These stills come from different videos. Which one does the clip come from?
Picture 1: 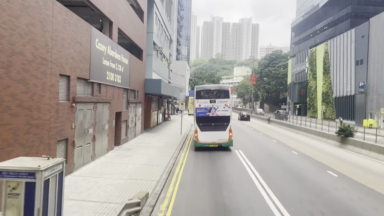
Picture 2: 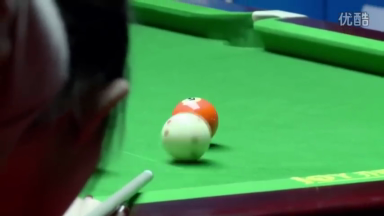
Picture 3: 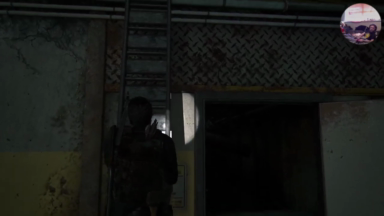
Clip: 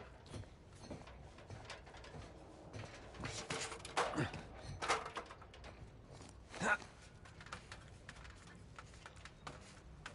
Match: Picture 3